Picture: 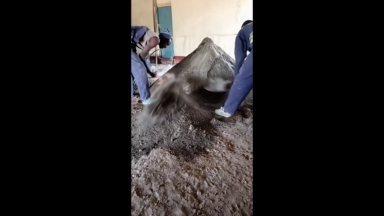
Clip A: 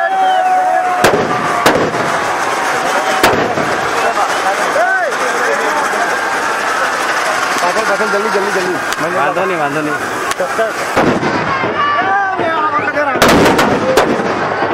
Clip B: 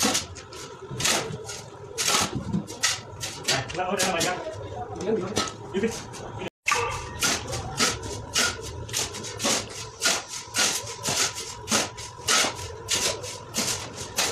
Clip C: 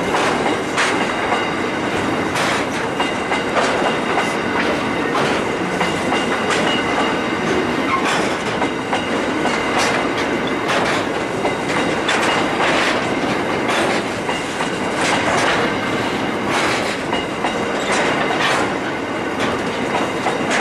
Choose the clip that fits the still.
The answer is B